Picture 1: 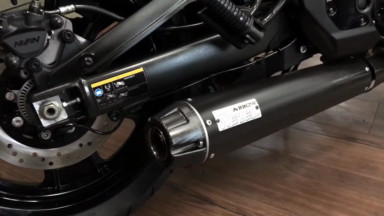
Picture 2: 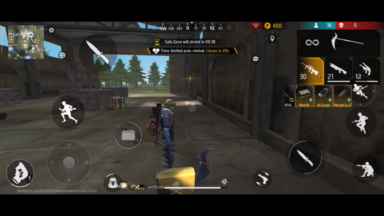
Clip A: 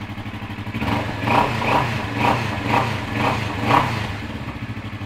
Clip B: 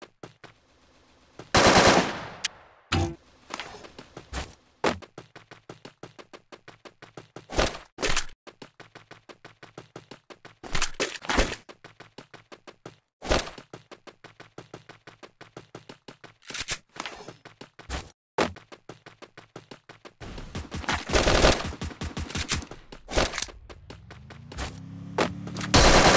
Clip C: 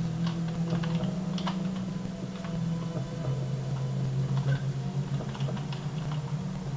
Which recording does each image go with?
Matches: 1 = A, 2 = B